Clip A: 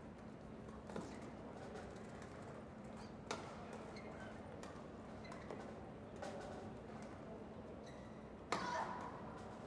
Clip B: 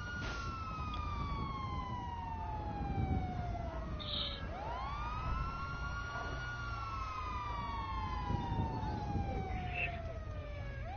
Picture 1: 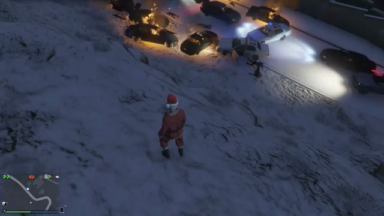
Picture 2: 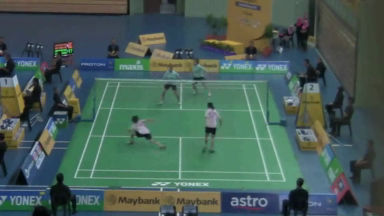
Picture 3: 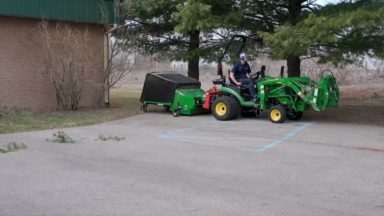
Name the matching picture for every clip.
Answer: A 2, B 1